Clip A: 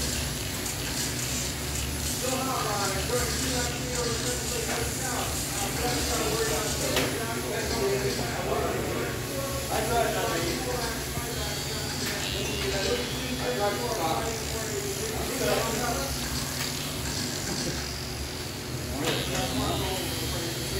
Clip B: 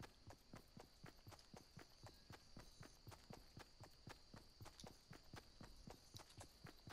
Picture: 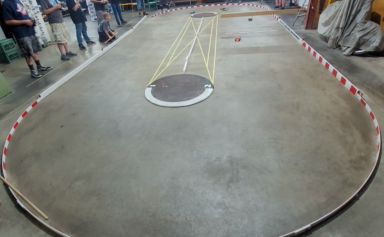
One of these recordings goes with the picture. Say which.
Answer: A